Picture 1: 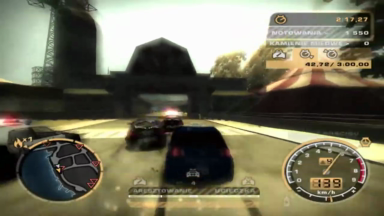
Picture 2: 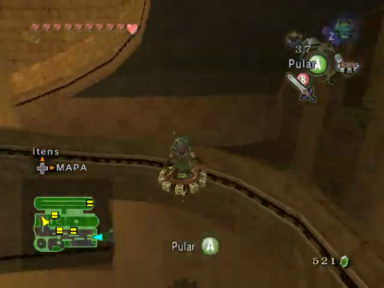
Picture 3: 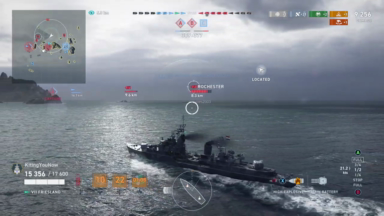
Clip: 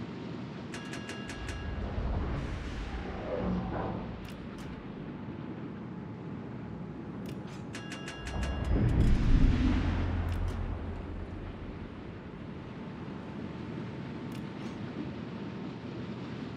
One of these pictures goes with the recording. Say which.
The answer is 3